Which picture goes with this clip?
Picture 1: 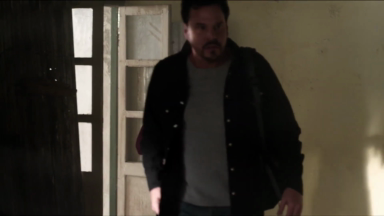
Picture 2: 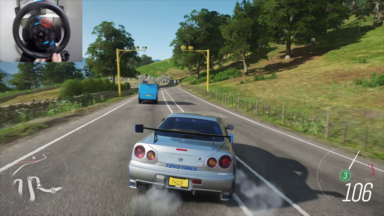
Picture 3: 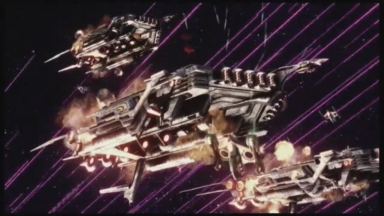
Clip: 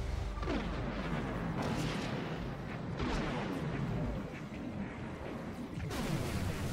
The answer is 3